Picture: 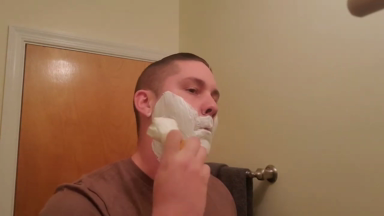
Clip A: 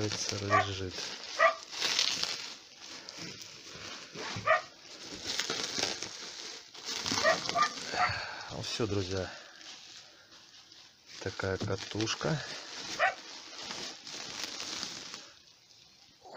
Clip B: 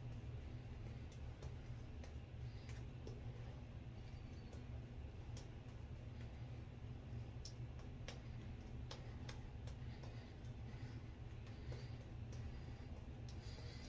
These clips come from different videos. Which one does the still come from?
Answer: B